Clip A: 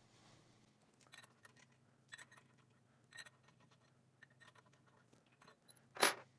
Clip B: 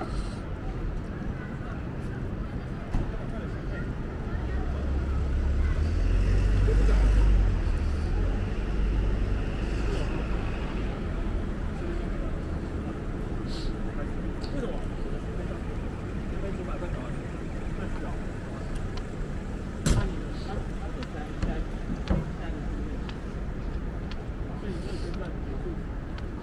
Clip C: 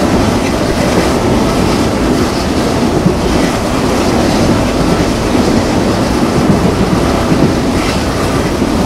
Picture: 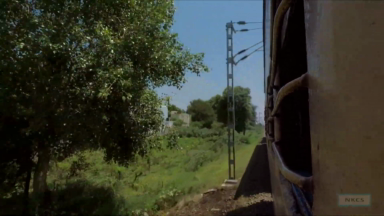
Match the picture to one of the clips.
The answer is C